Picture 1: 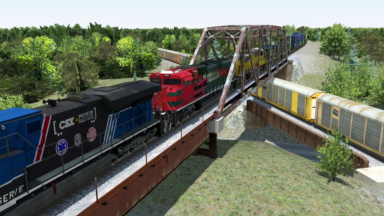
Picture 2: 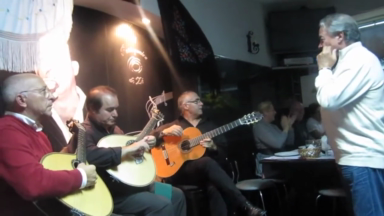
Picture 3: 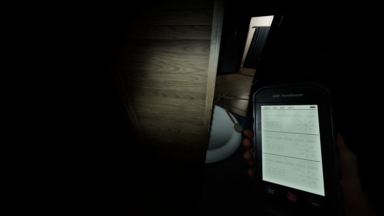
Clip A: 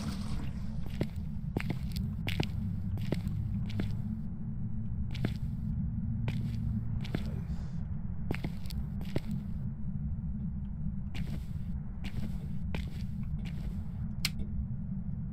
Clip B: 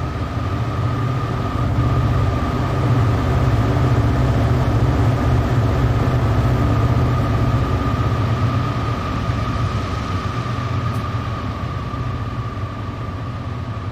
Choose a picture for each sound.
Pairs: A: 3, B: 1